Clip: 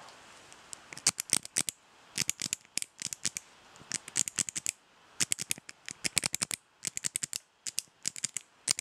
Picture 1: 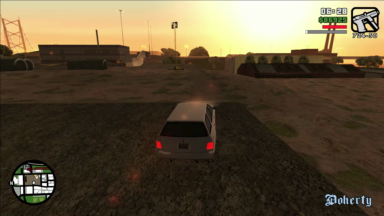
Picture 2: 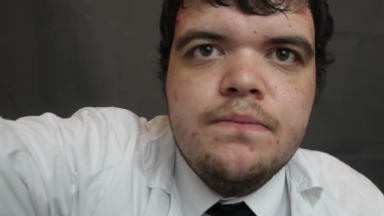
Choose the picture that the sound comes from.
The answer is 2